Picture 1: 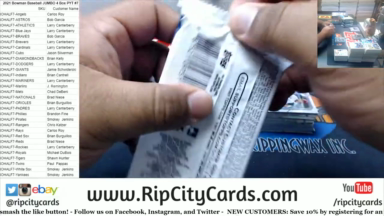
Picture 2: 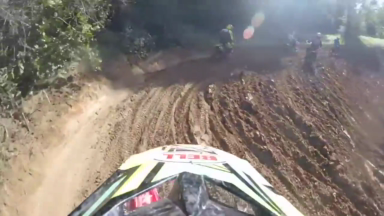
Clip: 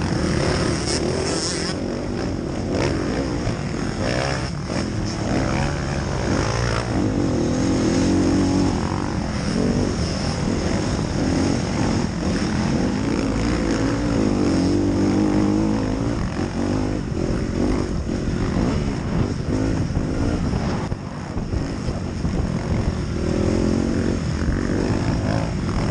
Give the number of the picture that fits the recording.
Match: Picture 2